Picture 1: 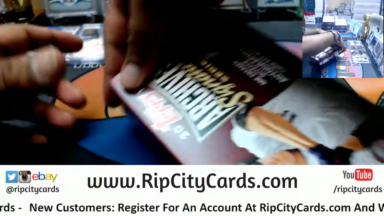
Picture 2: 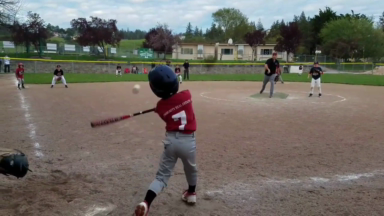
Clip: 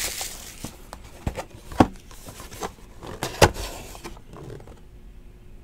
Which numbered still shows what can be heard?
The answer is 1